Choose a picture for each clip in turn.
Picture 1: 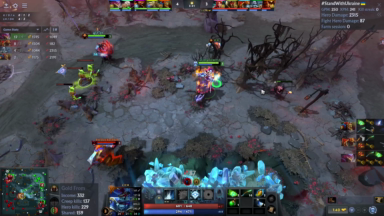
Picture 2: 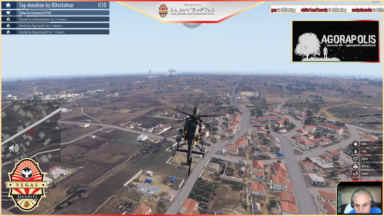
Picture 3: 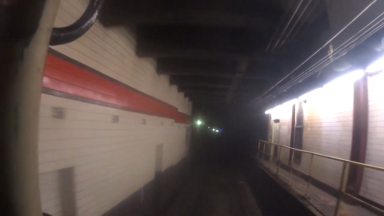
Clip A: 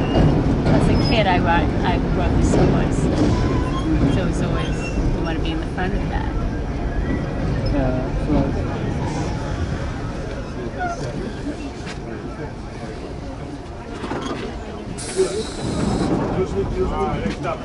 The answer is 3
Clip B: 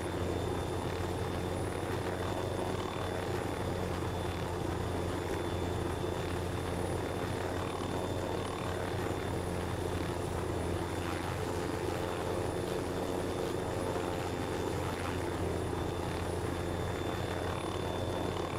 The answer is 2